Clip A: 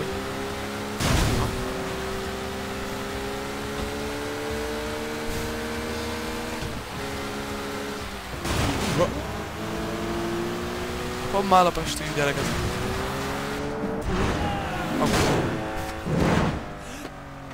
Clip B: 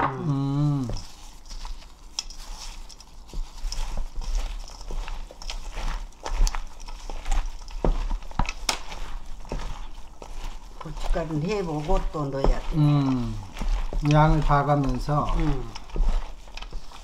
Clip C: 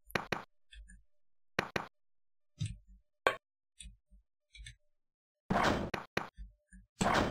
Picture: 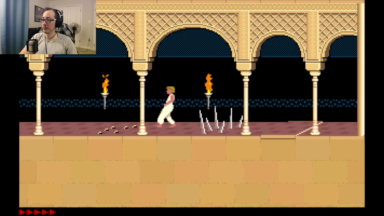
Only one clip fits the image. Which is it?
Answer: C